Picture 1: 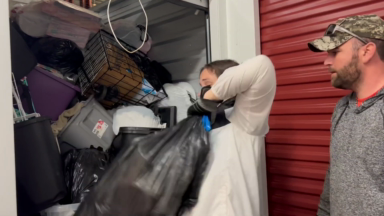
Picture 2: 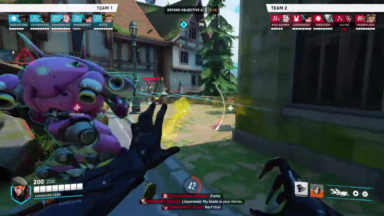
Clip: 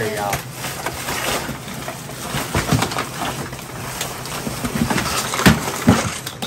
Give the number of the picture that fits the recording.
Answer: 1